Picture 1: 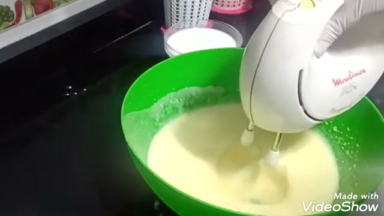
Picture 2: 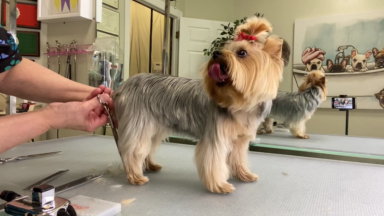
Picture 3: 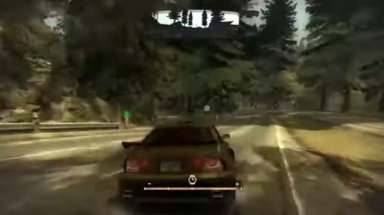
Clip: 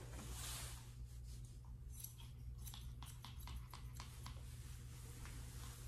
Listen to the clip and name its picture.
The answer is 2